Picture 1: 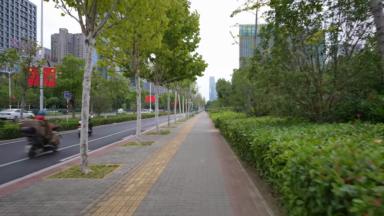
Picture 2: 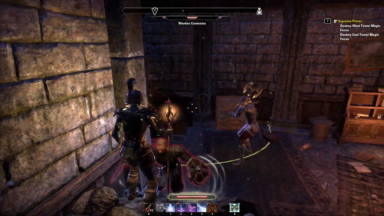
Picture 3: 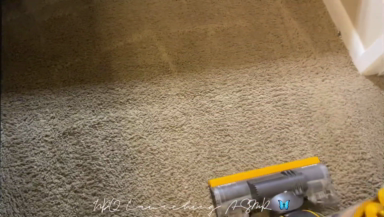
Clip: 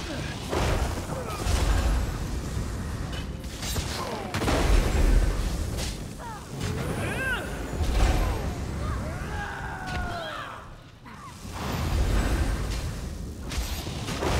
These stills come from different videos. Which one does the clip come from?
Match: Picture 2